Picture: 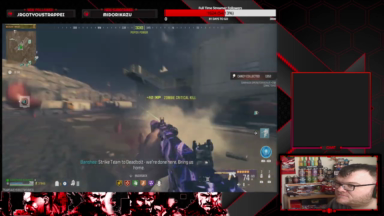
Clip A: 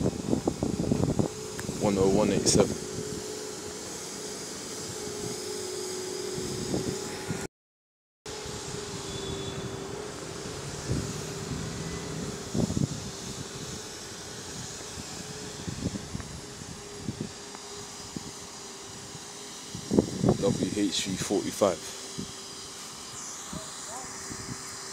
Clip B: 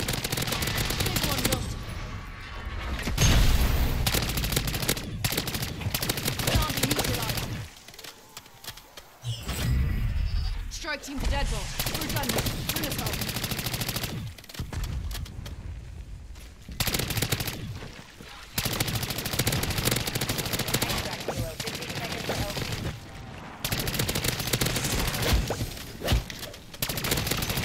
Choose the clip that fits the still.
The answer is B